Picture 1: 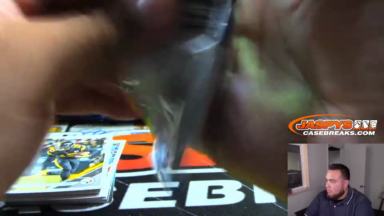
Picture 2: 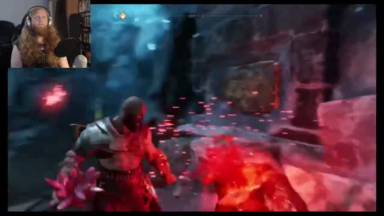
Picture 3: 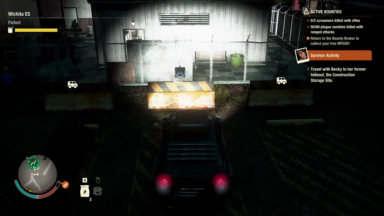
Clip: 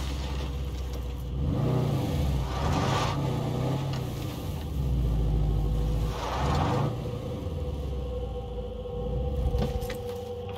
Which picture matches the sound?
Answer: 3